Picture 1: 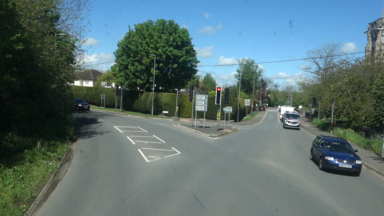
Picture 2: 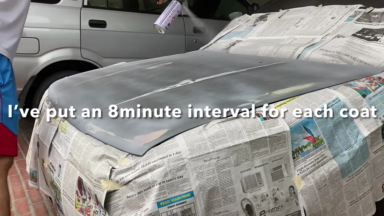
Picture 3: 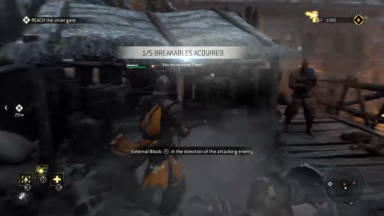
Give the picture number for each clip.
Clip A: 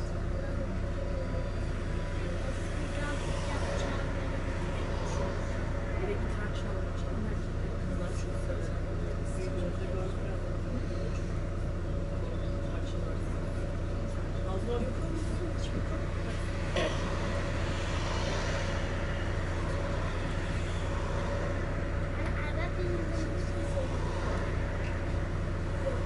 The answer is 1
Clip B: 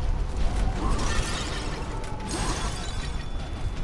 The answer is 3